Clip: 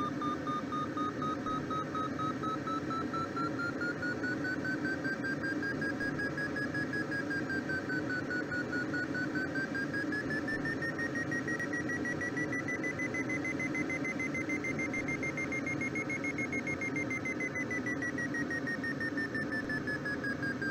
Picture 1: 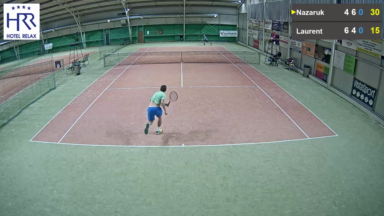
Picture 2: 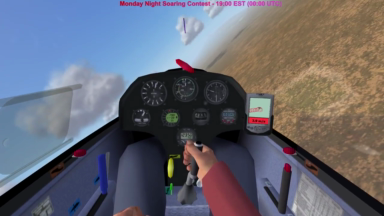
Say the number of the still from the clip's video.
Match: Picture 2